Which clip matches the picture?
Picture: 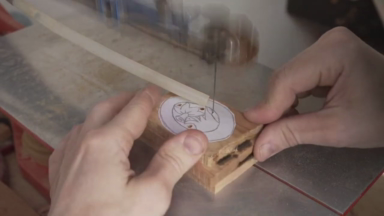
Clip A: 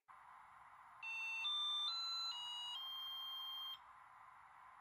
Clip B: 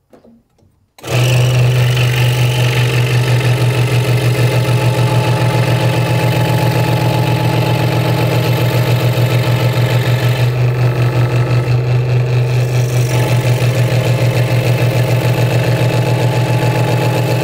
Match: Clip B